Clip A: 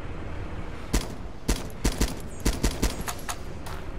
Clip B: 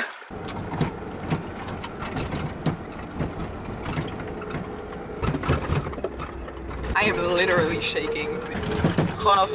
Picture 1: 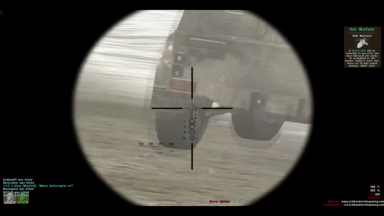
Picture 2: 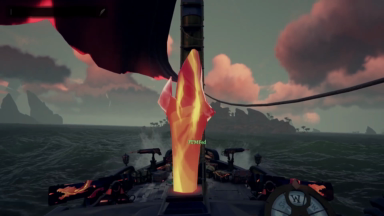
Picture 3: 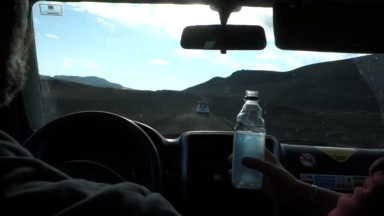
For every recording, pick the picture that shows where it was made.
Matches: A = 1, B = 3